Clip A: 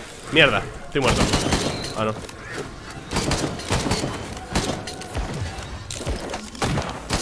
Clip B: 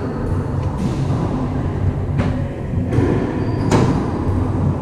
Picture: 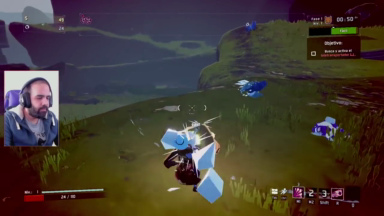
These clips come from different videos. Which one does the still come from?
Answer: A